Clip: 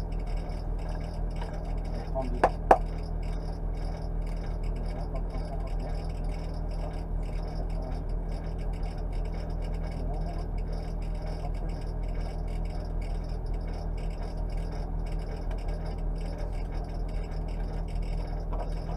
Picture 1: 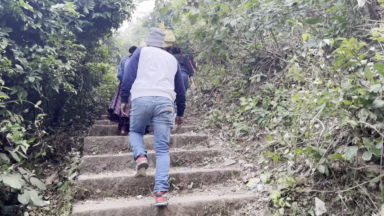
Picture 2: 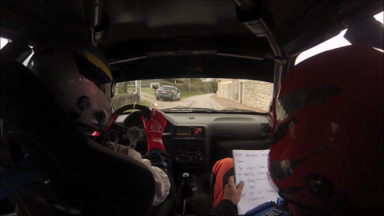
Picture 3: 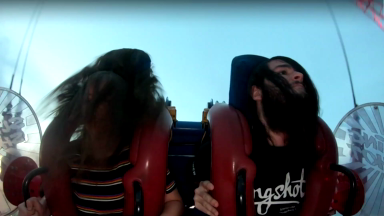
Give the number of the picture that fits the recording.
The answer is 2